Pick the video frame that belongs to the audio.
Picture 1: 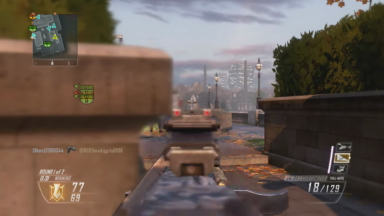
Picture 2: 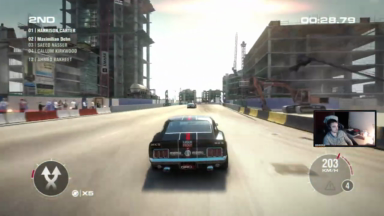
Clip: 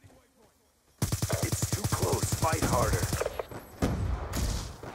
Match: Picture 1